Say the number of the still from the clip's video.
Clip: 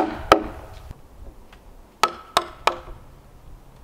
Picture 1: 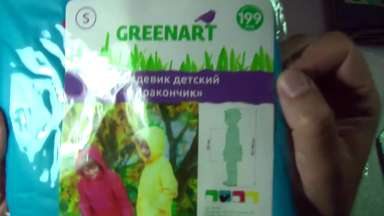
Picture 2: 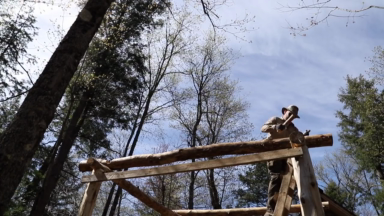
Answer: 2